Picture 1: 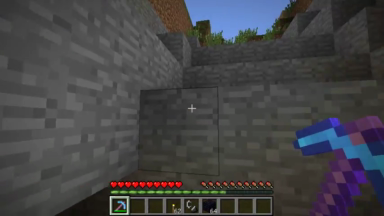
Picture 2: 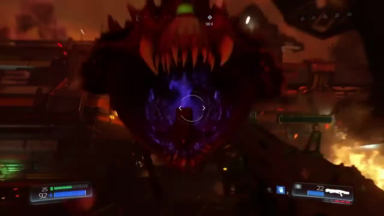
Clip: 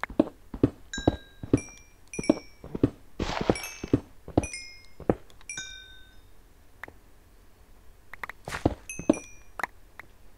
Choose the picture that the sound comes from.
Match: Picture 1